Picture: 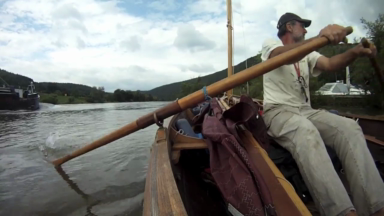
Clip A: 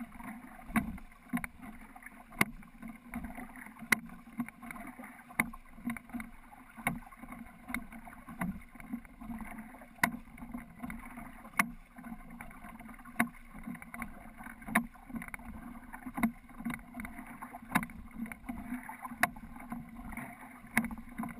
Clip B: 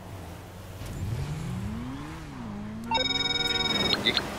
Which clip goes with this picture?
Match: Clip A